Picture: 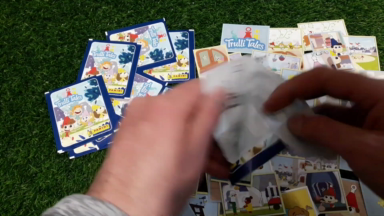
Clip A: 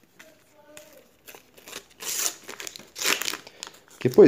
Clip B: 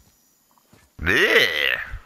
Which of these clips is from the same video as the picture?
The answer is A